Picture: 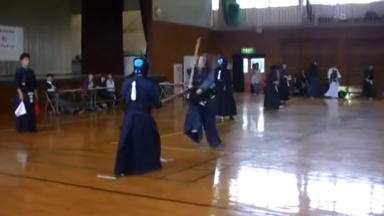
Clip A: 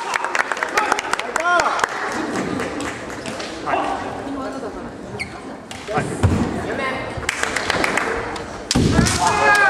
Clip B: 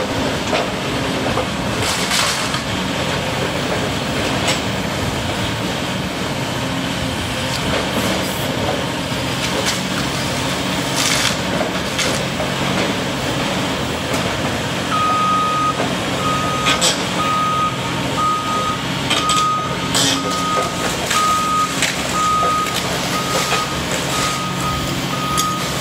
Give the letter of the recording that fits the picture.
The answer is A